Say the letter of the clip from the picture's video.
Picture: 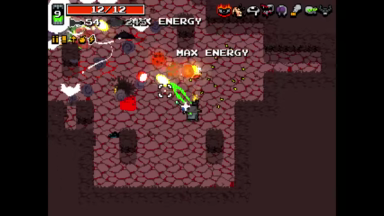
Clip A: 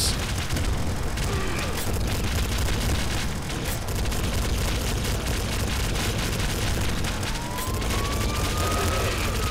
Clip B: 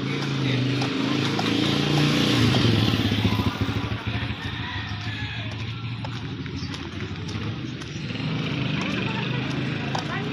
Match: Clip A